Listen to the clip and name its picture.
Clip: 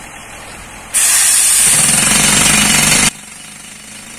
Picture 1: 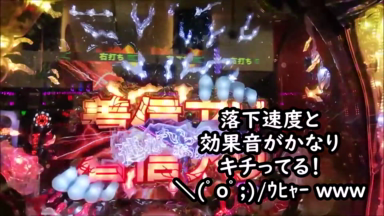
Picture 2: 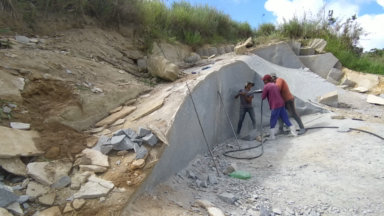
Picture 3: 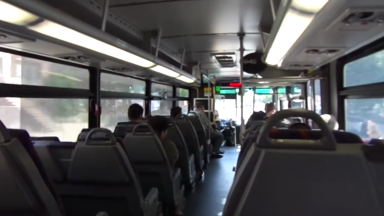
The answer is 2